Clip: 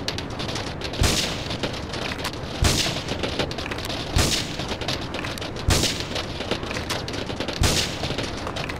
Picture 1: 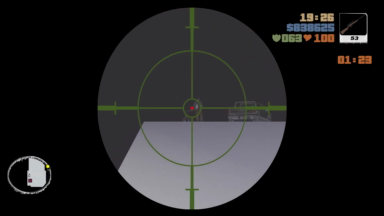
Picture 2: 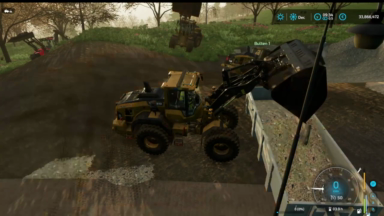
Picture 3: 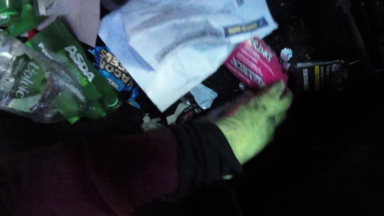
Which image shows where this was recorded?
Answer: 1